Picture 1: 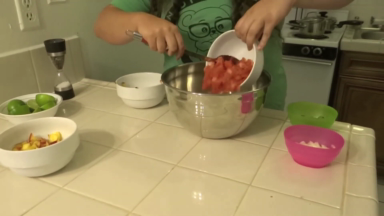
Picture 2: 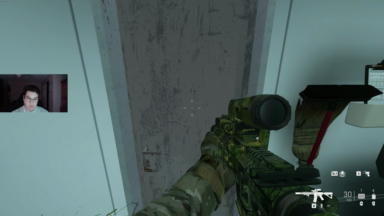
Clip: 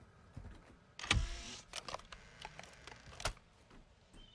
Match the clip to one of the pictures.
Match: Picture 2